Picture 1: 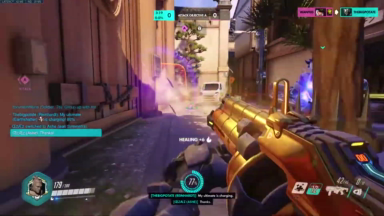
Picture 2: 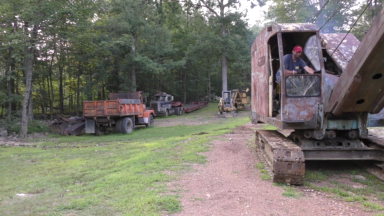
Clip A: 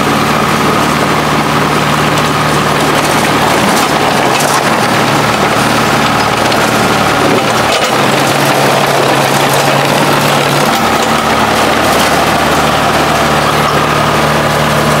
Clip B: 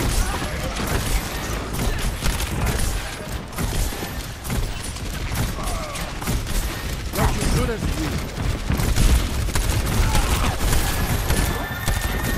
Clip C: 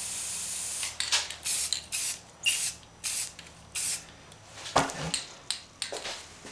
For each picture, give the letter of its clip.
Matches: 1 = B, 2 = A